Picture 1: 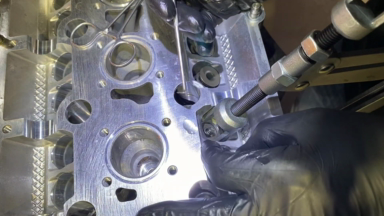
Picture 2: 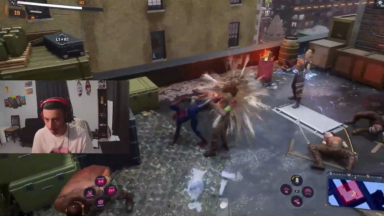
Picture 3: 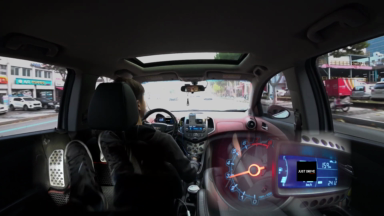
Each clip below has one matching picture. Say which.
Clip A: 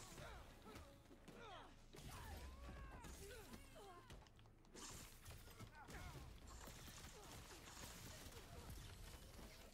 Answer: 2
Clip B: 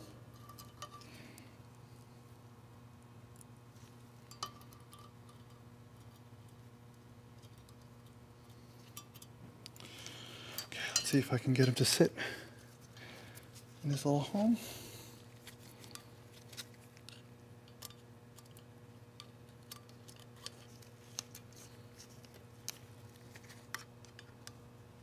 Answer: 1